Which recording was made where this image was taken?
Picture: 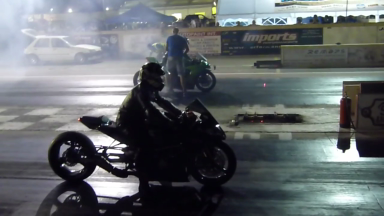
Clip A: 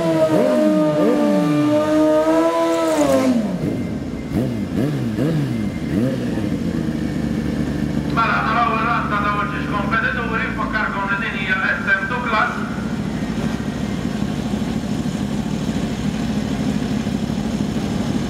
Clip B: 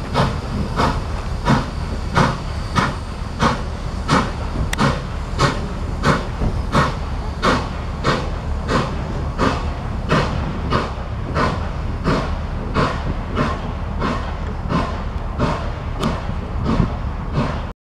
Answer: A